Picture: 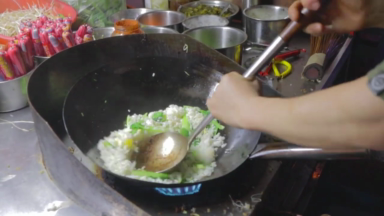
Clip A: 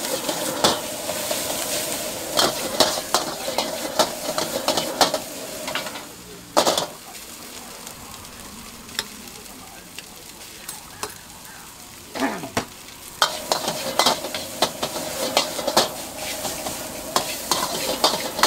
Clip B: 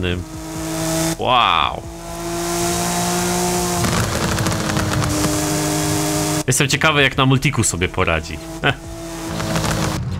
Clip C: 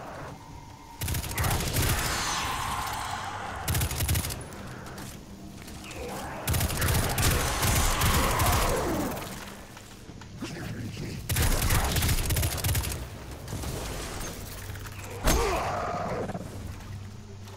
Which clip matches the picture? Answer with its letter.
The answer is A